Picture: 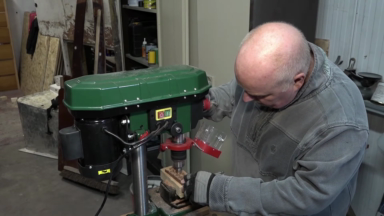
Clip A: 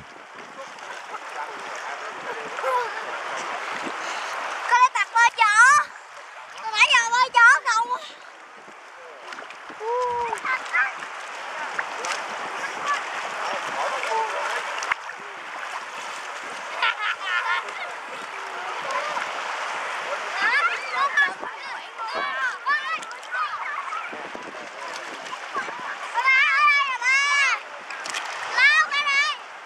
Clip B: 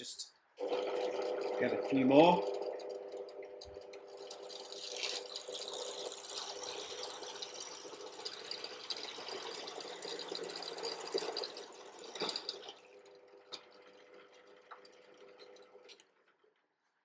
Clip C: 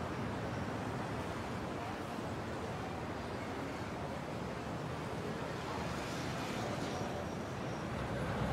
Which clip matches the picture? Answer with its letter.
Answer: B